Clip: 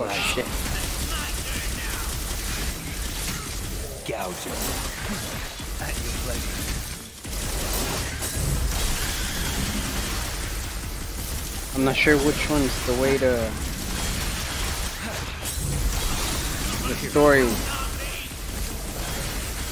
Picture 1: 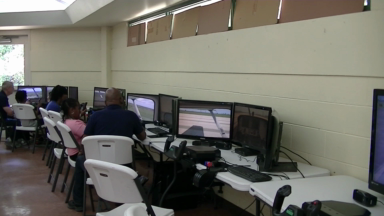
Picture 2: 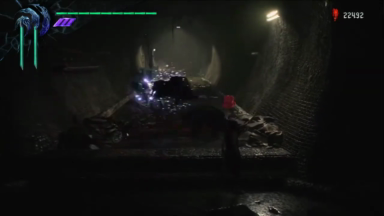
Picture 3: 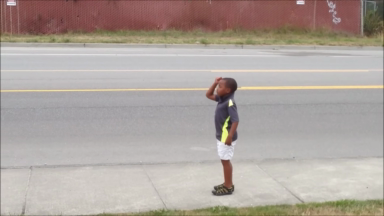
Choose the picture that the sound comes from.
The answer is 2